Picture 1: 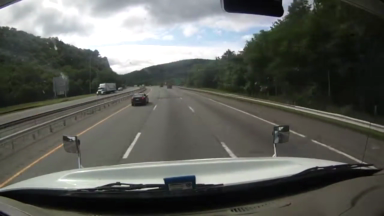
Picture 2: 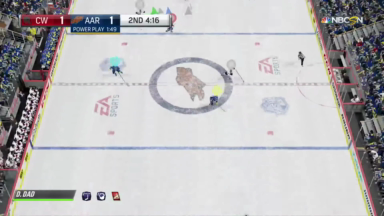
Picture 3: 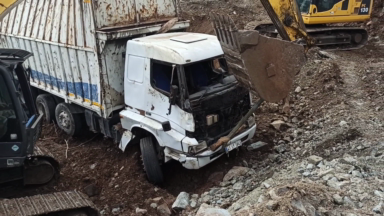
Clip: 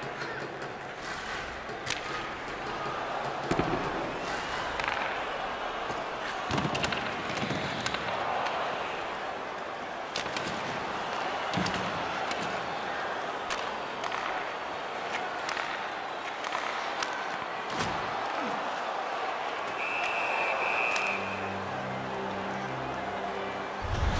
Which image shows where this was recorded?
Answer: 2